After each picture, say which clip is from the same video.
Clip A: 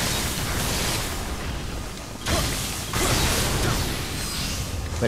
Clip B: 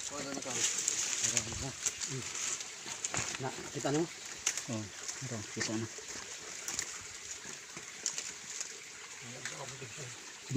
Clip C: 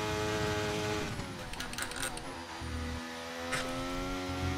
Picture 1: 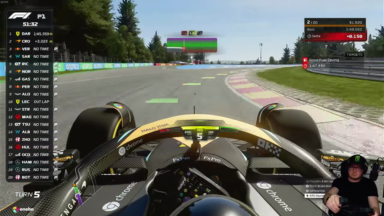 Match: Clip C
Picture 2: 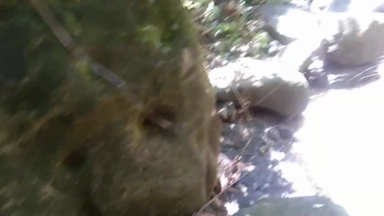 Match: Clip B